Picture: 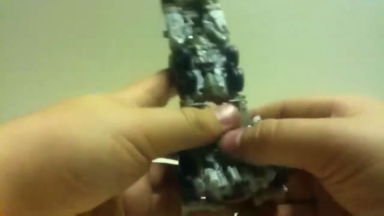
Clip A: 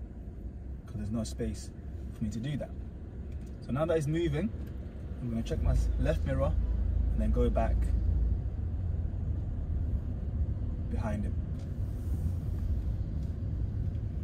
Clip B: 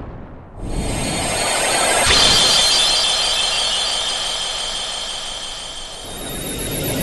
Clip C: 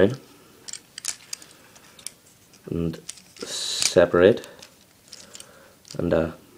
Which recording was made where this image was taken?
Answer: C